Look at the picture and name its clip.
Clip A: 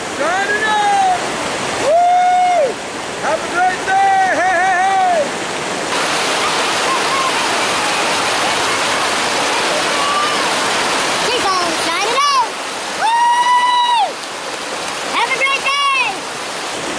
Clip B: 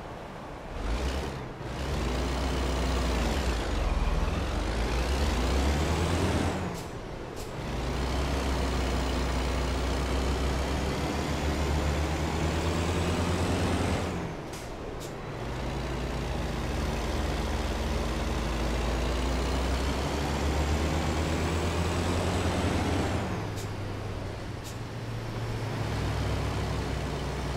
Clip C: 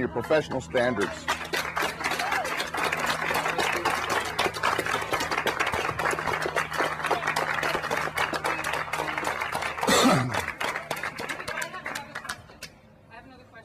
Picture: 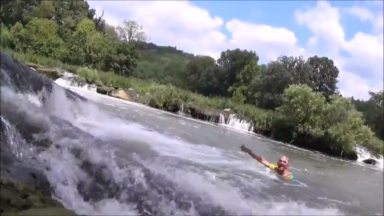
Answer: A